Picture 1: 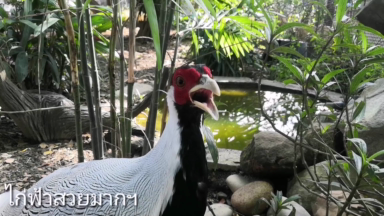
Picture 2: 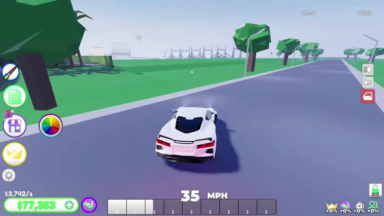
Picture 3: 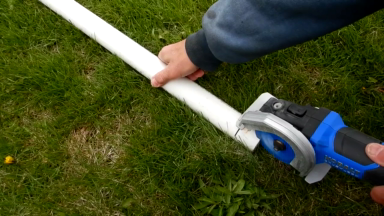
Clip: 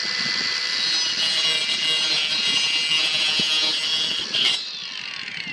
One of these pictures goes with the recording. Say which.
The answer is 3